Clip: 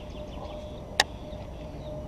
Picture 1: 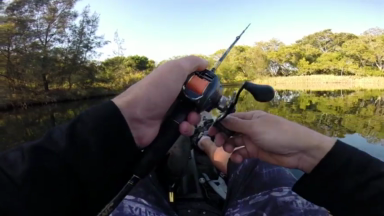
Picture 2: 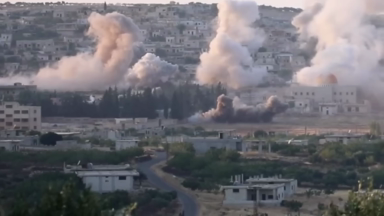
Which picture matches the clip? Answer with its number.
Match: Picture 1